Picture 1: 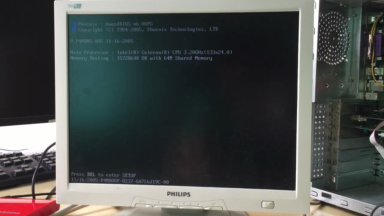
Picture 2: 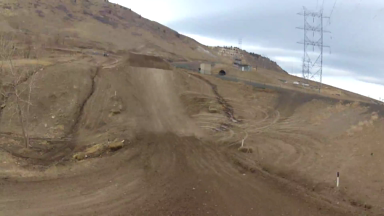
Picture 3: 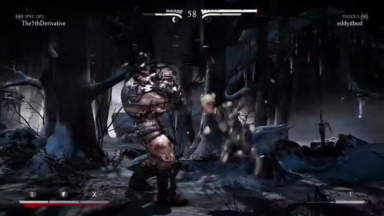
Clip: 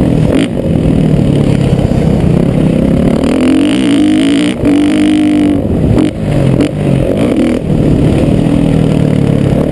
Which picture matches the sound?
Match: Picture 2